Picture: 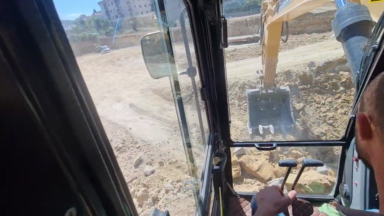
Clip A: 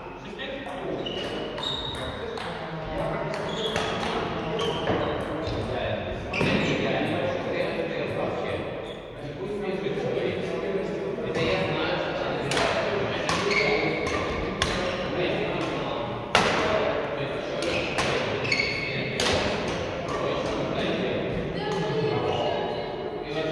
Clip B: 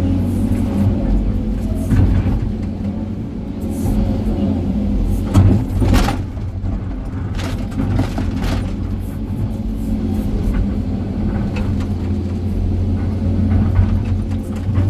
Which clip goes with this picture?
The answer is B